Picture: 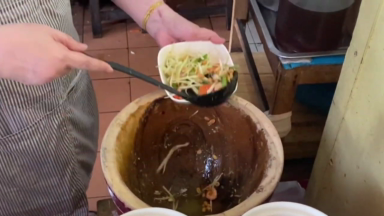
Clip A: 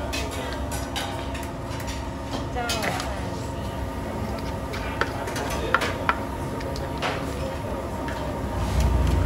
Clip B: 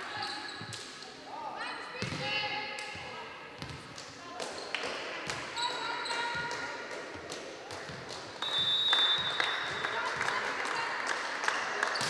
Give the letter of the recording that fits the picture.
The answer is A